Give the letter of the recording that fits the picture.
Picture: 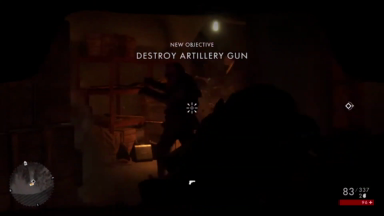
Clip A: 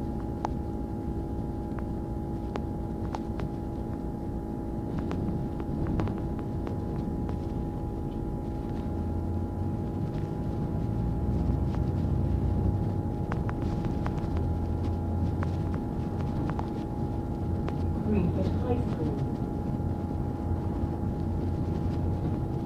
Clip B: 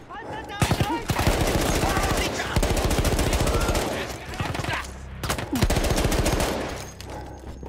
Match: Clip B